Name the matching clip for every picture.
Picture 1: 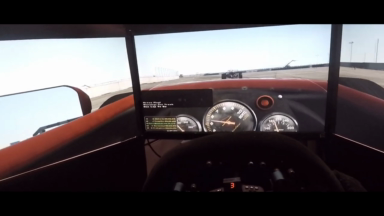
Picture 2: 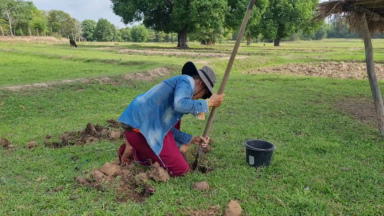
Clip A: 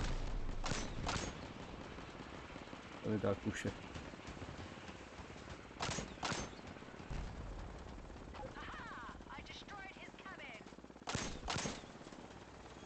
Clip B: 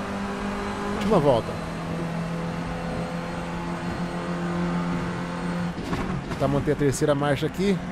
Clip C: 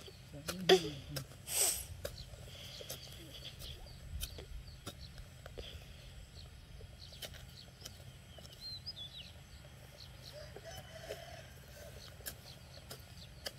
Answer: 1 B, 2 C